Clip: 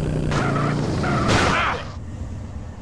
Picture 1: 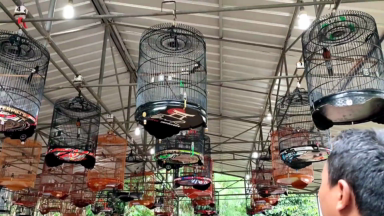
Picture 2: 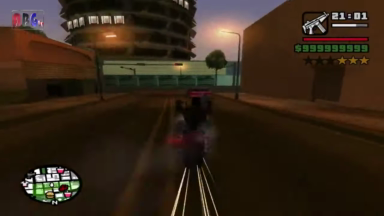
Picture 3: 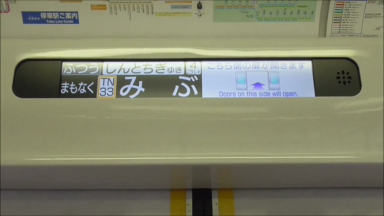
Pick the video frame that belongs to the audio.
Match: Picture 2